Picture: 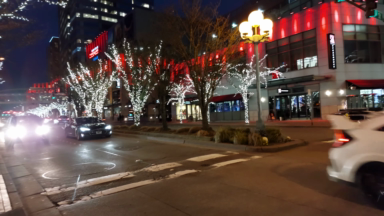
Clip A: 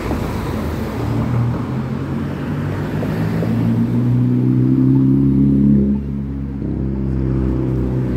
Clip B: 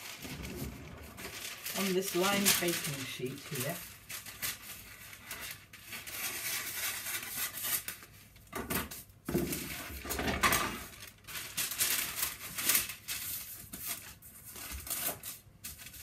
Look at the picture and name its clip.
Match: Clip A